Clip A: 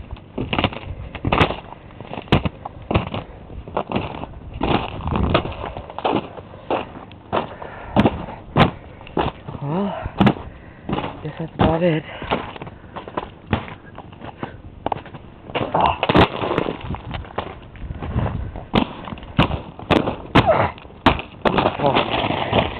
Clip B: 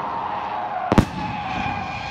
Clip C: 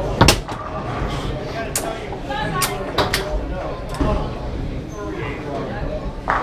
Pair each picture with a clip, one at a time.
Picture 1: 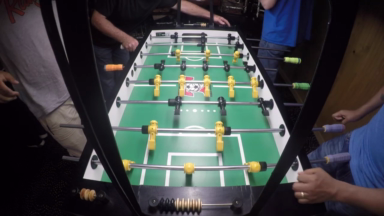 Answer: C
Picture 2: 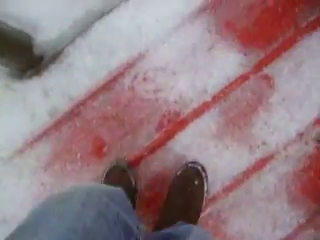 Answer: A